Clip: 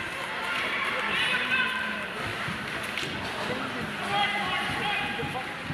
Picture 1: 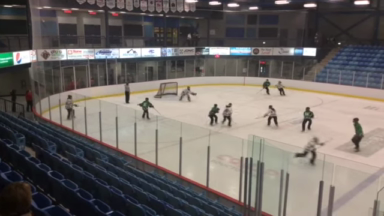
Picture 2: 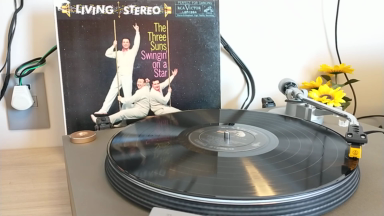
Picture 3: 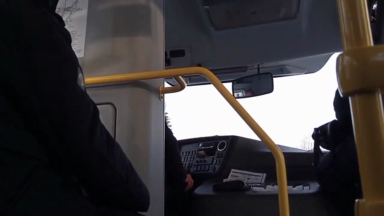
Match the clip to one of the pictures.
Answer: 1